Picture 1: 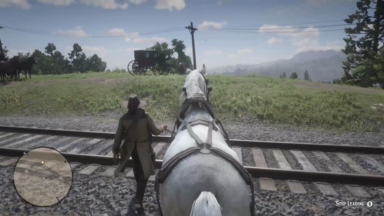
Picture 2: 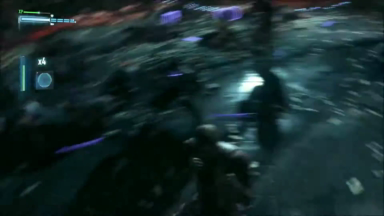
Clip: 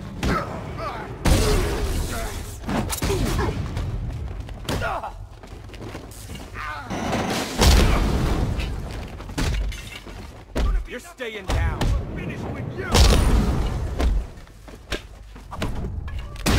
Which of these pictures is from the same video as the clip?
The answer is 2